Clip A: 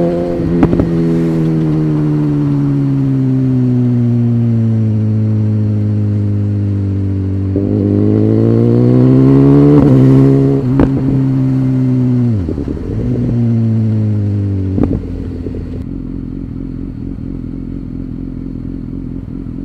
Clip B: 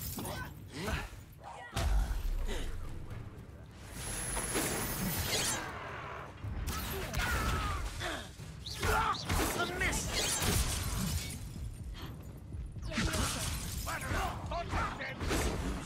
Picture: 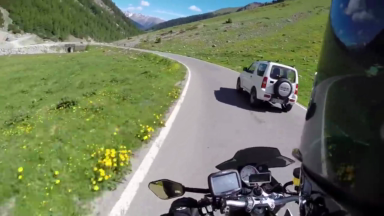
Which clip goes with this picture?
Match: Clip A